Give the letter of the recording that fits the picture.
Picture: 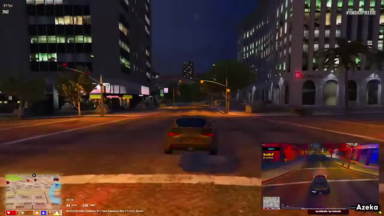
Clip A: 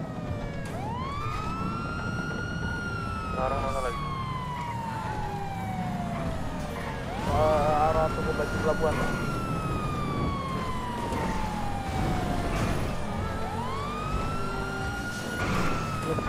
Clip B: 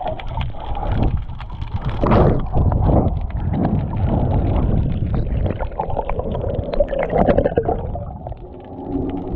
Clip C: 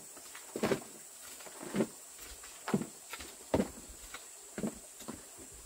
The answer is A